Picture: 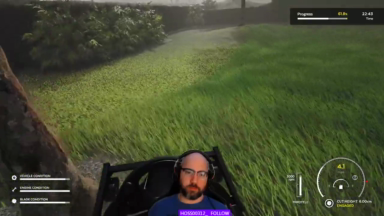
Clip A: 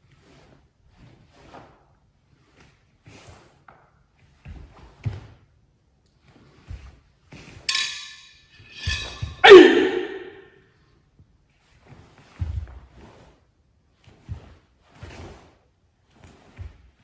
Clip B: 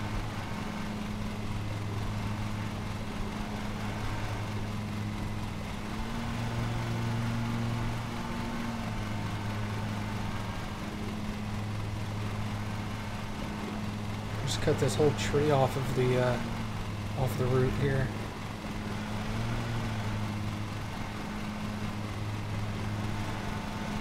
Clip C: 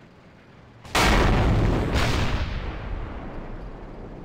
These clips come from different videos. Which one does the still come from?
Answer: B